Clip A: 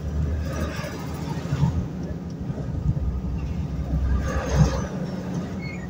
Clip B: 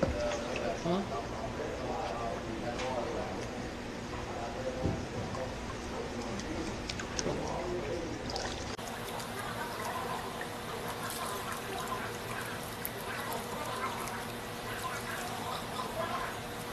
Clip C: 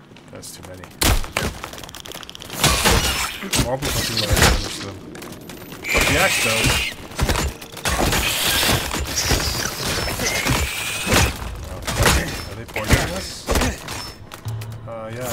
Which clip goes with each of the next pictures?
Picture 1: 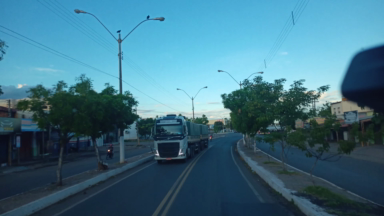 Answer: A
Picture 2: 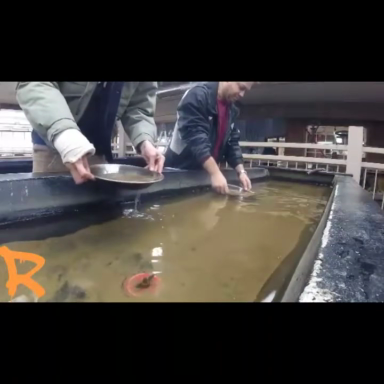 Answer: B